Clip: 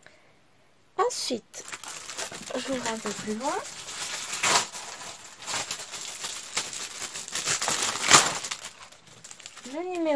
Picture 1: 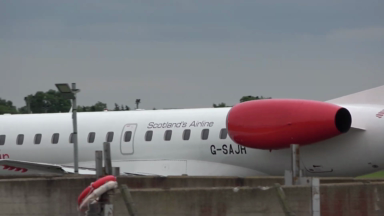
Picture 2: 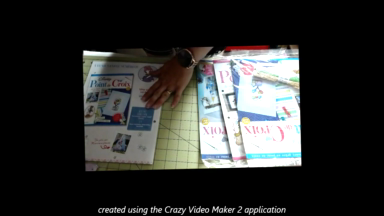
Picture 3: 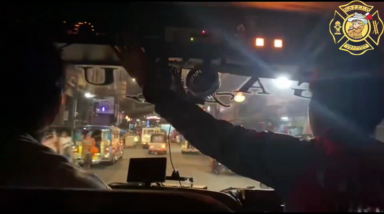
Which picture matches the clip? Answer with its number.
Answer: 2